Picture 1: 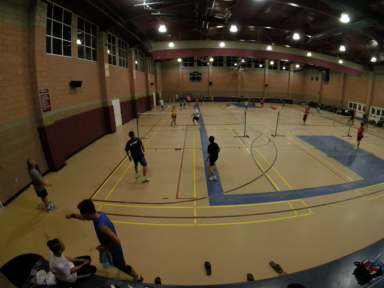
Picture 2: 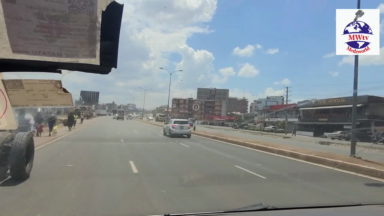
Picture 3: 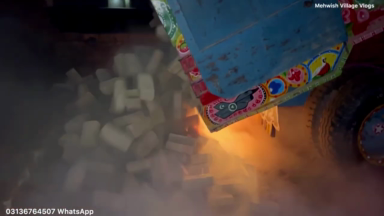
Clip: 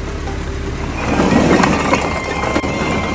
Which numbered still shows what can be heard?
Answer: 3